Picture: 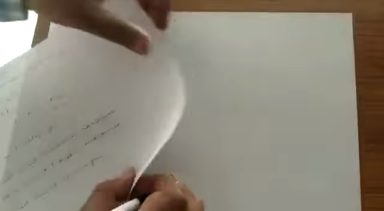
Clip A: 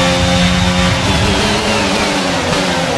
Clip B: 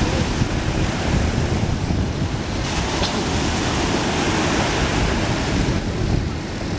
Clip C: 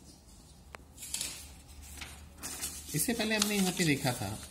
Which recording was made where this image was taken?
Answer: C